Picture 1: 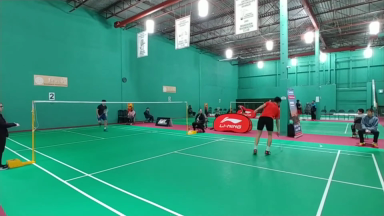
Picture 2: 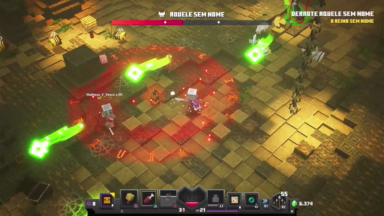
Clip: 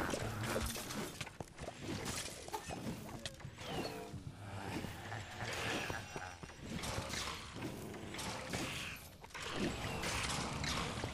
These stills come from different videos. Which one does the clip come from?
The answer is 2